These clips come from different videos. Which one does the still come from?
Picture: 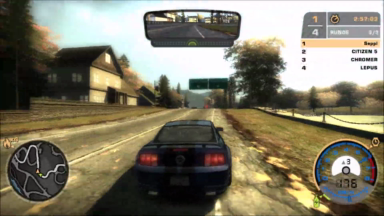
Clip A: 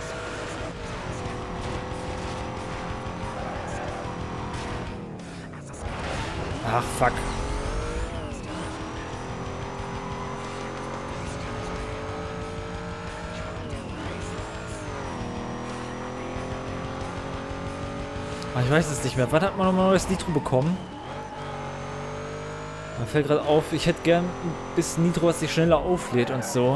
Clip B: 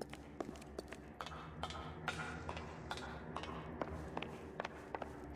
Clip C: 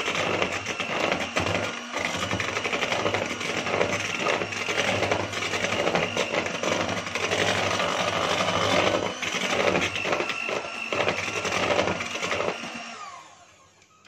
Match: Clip A